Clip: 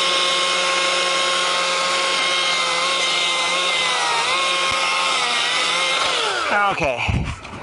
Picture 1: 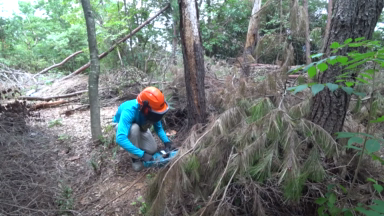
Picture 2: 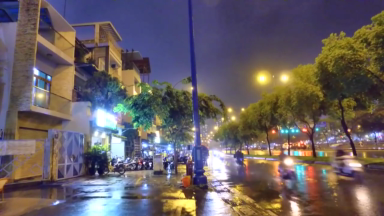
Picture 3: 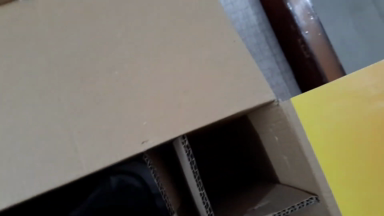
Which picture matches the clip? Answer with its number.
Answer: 1